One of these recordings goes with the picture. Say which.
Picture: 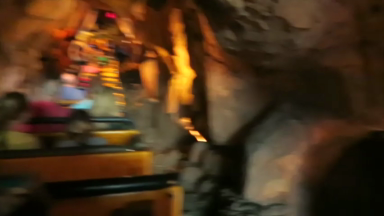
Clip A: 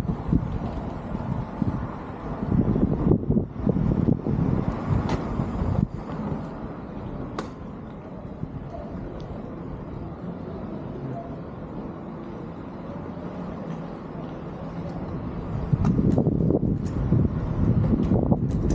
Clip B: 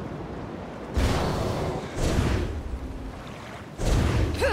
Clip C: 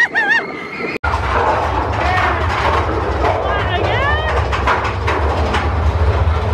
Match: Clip C